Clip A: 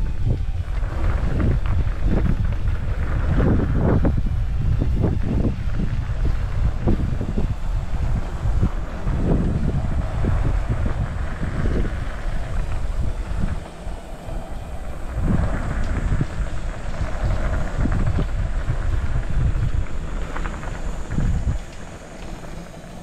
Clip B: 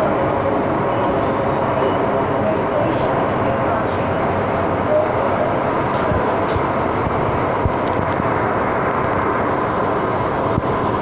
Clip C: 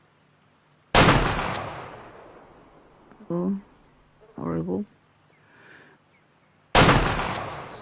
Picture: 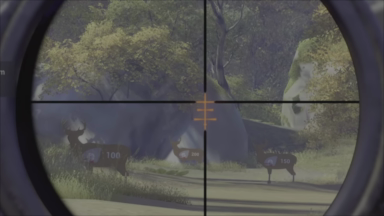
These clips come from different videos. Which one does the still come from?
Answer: C